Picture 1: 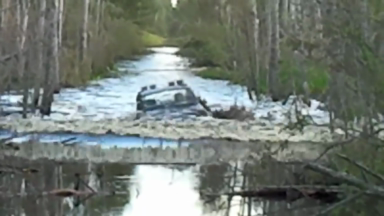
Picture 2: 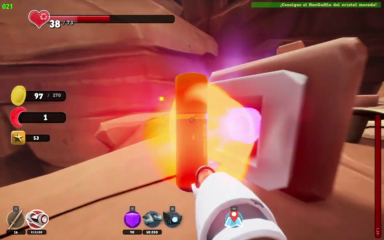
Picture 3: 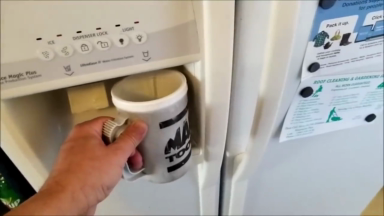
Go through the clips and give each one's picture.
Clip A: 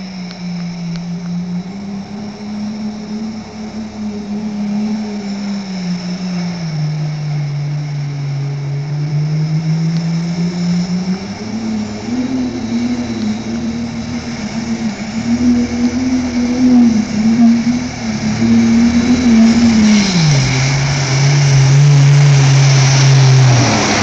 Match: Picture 1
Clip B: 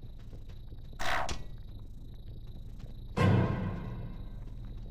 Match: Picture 2